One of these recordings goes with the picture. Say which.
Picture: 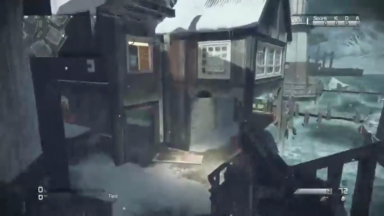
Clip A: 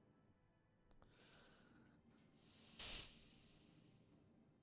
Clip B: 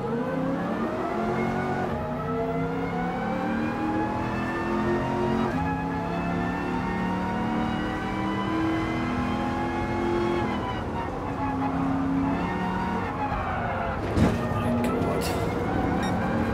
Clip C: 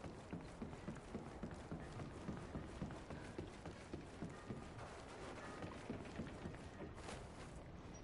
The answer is C